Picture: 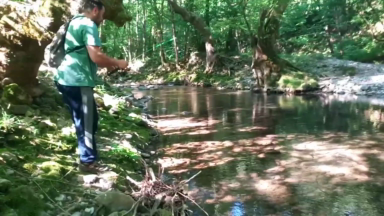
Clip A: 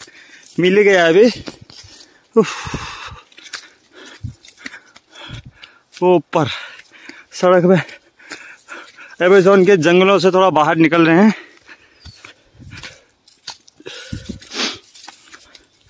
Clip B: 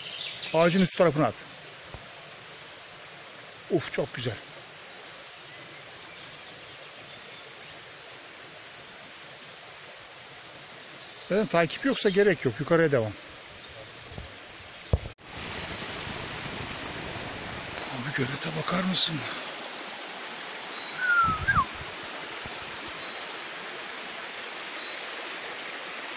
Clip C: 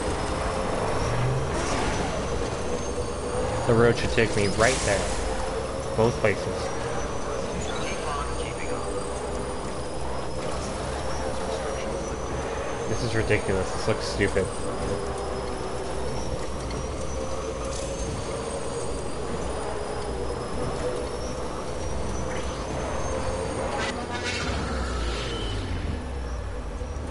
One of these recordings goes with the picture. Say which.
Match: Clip B